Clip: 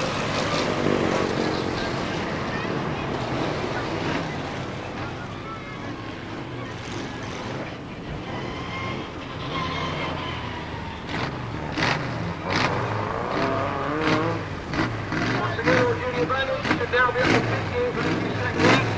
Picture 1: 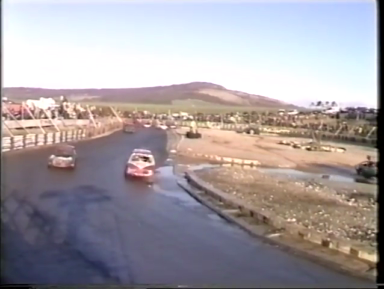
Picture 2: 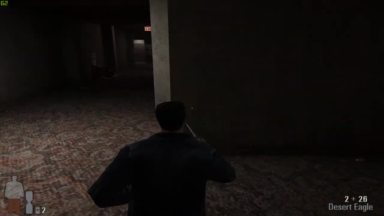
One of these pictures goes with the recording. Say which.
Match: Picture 1